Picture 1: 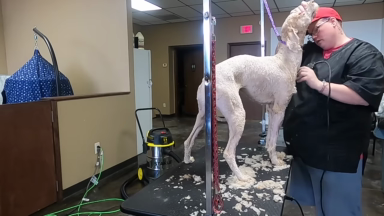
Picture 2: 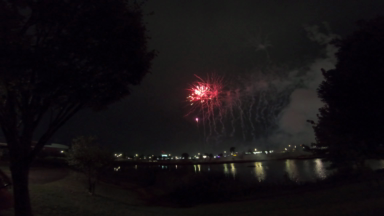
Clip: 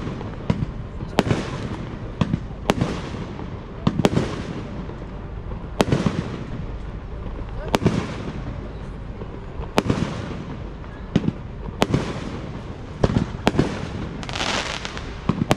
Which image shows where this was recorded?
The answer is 2